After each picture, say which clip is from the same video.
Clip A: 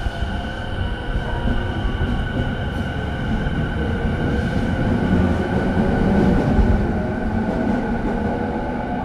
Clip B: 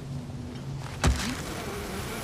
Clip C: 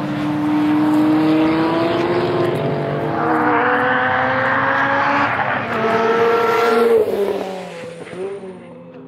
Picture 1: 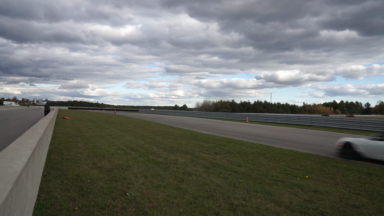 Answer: C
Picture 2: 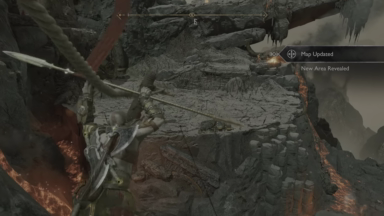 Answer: B